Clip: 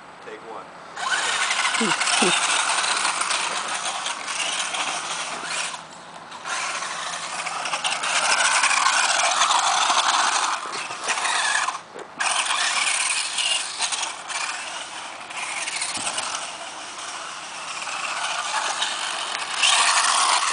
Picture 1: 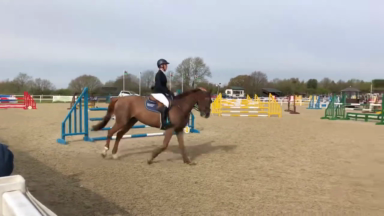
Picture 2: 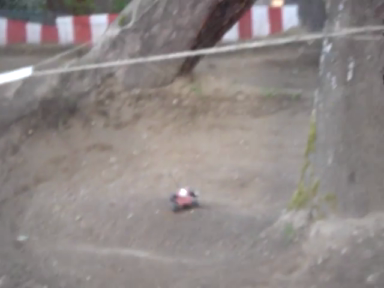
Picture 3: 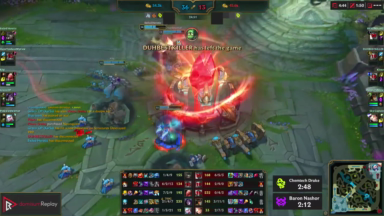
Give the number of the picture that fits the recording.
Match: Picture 2